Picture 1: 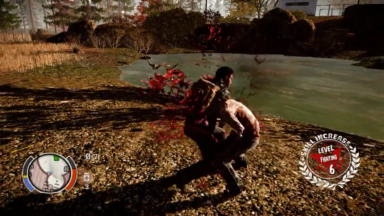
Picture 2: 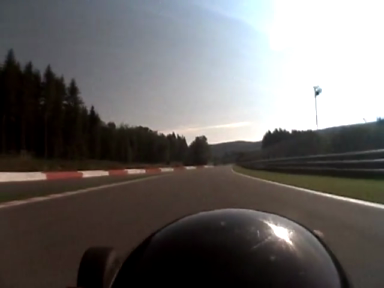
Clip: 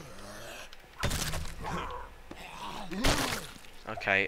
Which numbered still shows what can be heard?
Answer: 1